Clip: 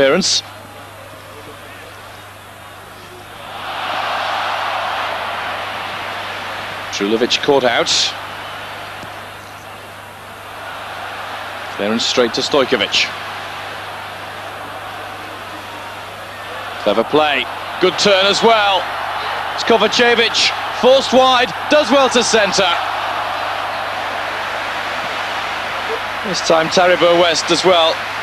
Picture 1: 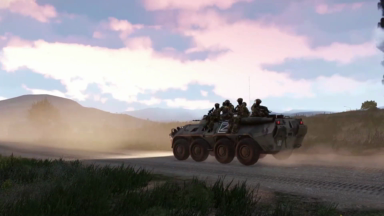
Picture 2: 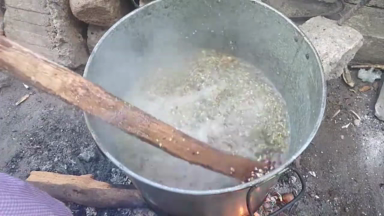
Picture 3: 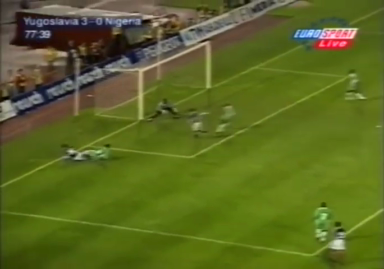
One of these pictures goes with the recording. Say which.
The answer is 3